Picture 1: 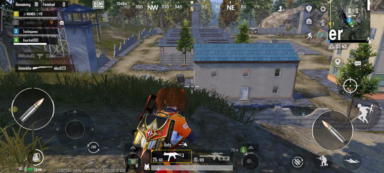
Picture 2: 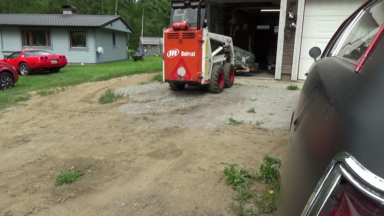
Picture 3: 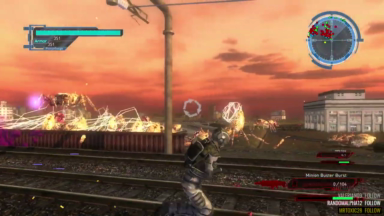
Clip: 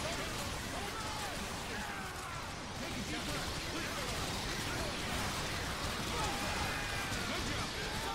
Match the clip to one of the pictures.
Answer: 3